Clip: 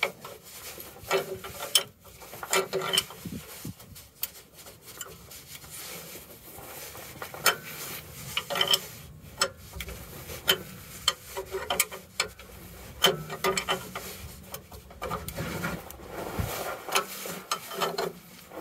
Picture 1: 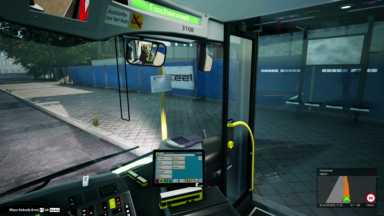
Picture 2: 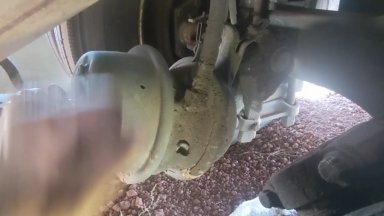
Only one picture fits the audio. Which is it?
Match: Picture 2